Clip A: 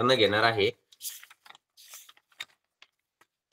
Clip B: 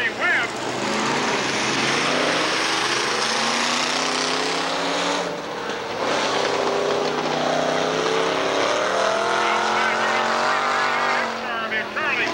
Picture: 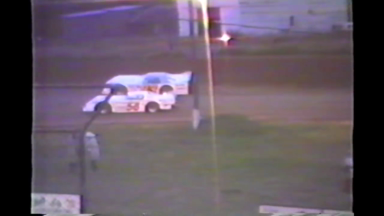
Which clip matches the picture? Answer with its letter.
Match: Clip B